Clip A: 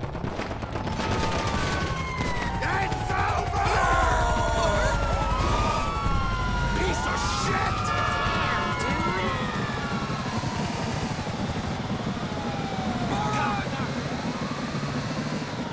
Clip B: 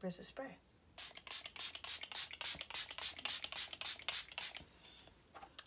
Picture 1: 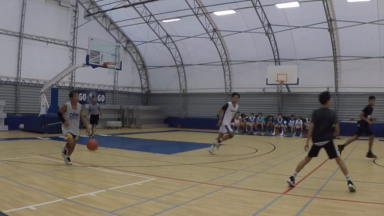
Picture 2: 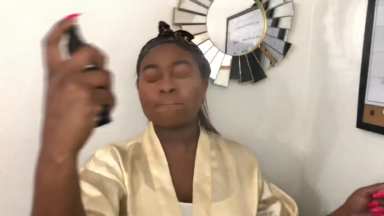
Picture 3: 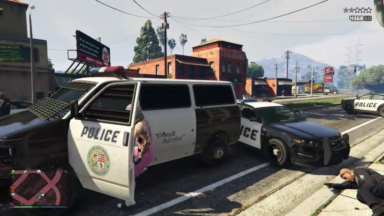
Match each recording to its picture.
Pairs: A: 3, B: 2